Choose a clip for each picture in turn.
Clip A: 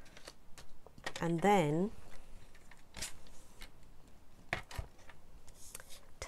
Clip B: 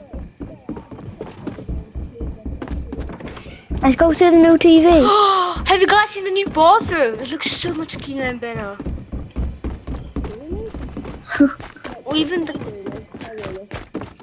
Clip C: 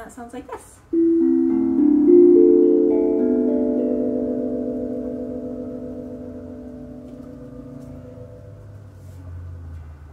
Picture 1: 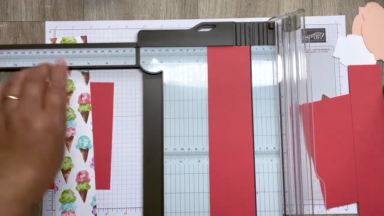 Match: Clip A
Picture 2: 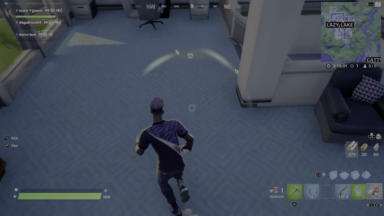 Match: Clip B